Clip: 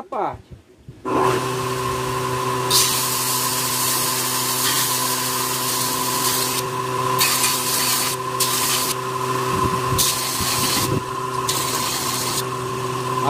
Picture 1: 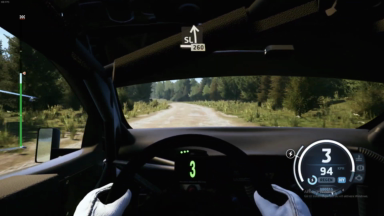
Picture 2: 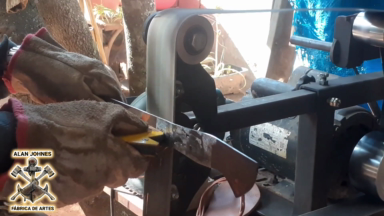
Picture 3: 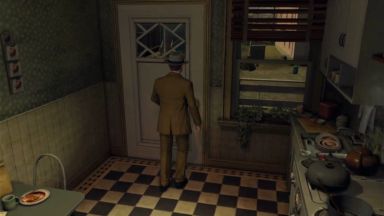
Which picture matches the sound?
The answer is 2